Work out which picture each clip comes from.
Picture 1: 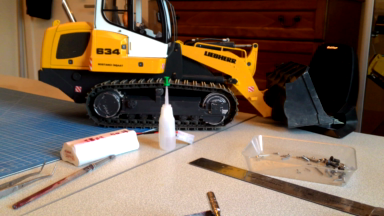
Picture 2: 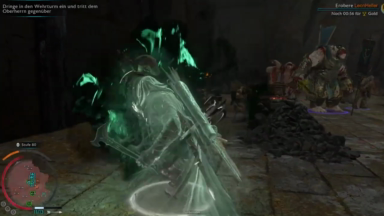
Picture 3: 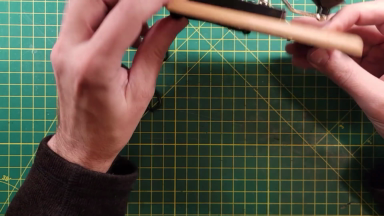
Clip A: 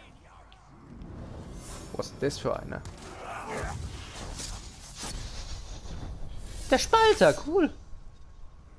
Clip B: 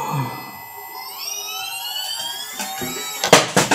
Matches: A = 2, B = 1